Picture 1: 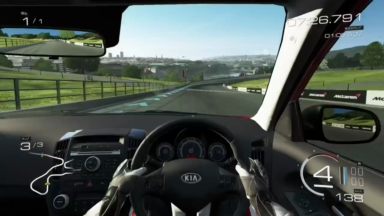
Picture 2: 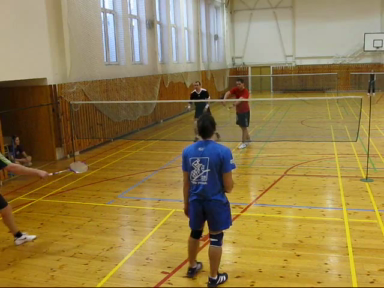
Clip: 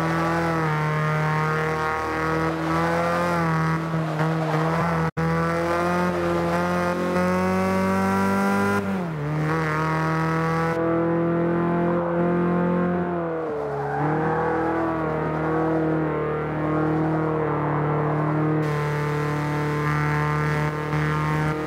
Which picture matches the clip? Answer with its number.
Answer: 1